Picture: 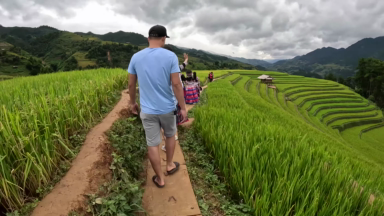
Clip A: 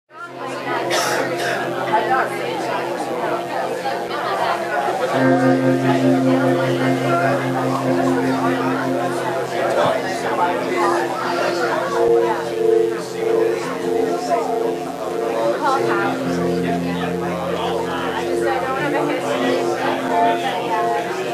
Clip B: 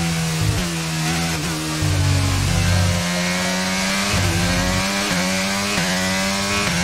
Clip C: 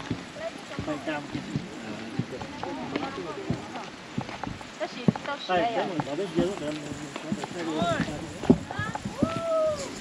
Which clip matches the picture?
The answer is C